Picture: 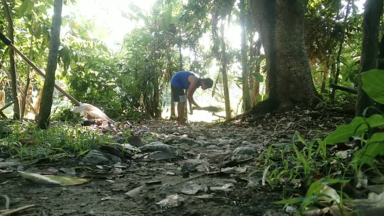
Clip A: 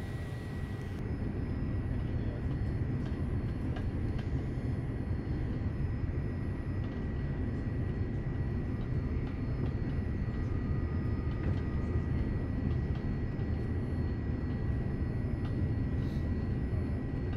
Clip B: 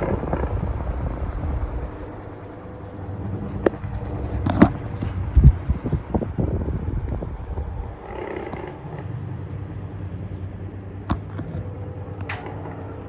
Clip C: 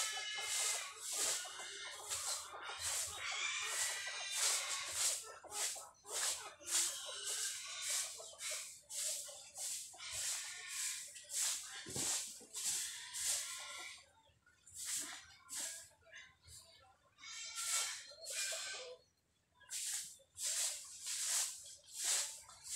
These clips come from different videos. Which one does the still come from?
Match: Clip C